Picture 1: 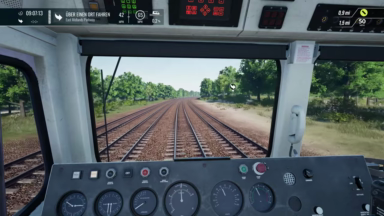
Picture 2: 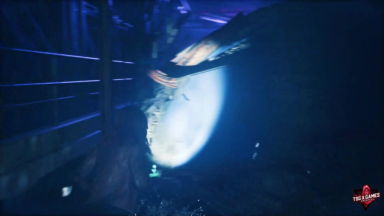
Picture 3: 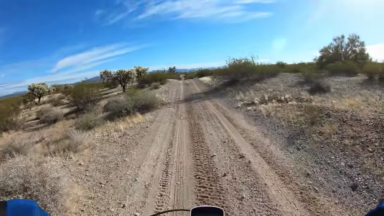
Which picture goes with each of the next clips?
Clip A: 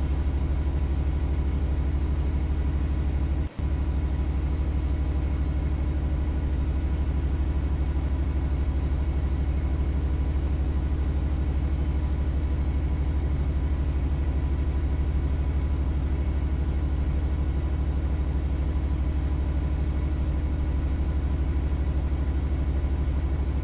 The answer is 1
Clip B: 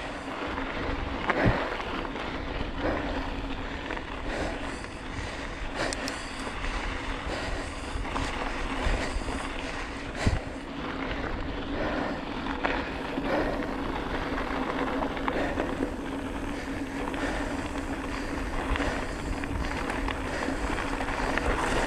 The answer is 3